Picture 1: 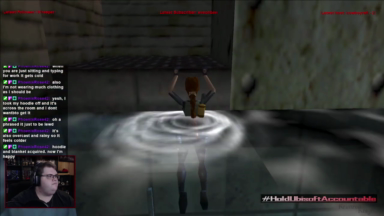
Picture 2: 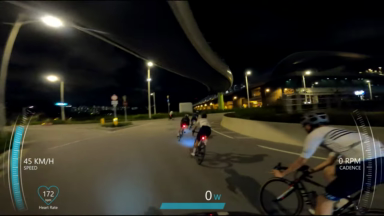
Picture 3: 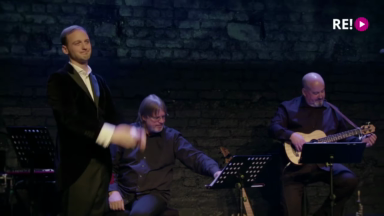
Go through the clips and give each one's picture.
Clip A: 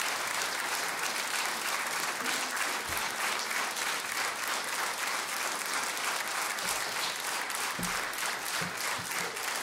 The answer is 3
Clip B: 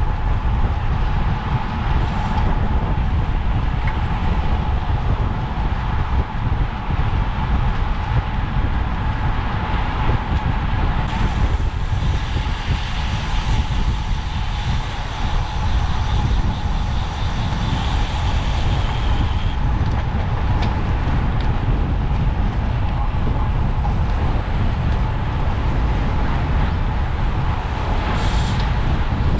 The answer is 2